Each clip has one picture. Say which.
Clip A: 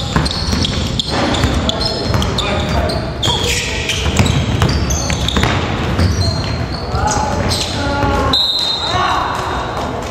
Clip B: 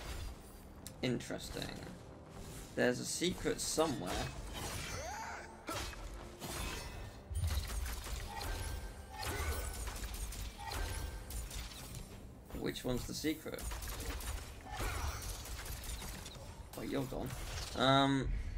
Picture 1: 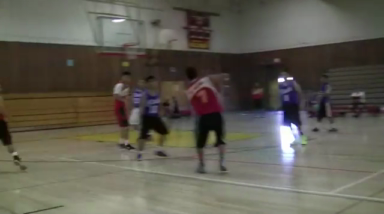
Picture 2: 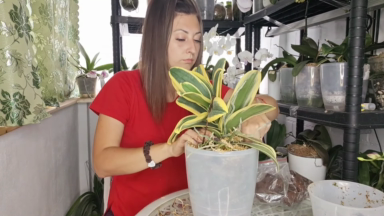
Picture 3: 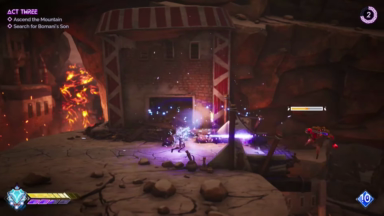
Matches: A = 1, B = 3